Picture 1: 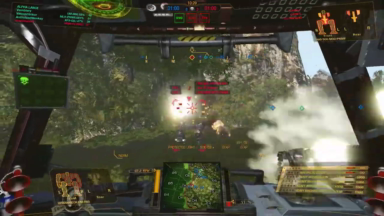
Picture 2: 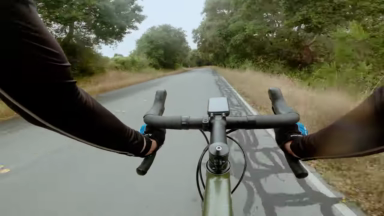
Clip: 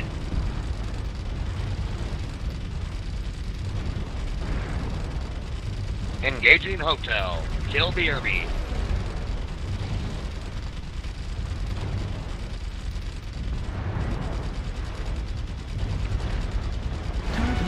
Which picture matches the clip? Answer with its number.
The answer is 1